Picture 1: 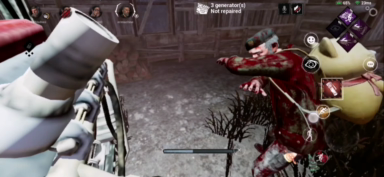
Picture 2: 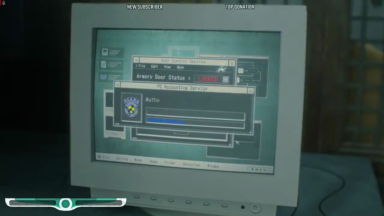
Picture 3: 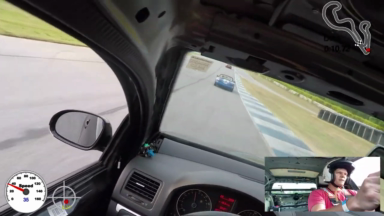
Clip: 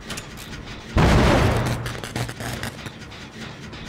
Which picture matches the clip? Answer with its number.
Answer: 1